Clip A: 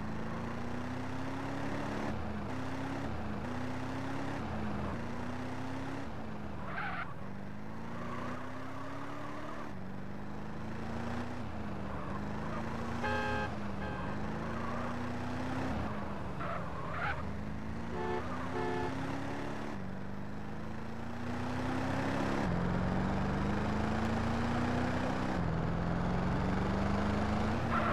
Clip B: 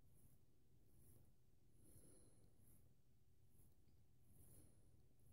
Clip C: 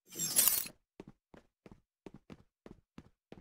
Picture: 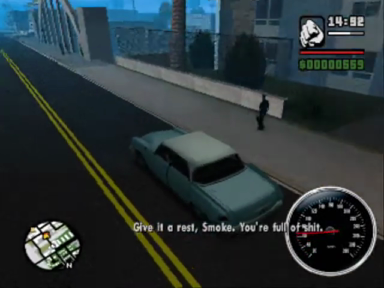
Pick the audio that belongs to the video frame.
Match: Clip A